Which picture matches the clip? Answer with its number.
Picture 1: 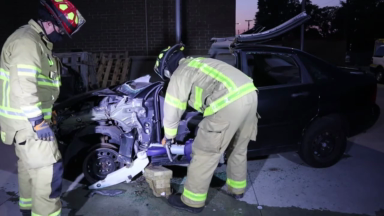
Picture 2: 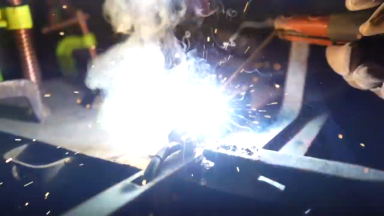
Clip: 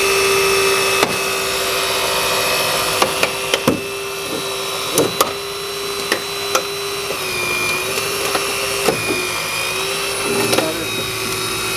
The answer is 1